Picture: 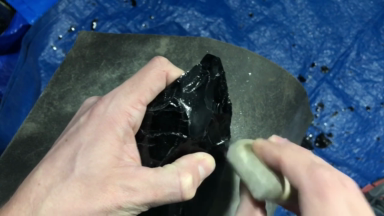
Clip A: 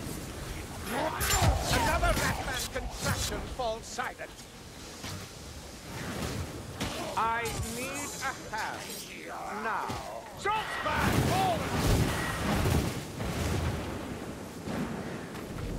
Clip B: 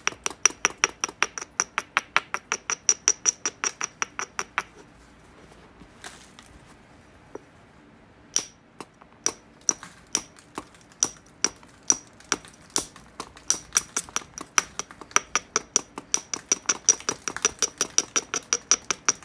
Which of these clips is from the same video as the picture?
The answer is B